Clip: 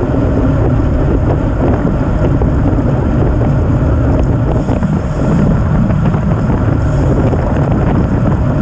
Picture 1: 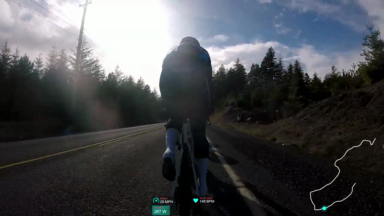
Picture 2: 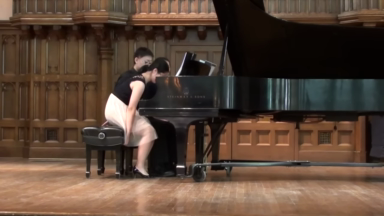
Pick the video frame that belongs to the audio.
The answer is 1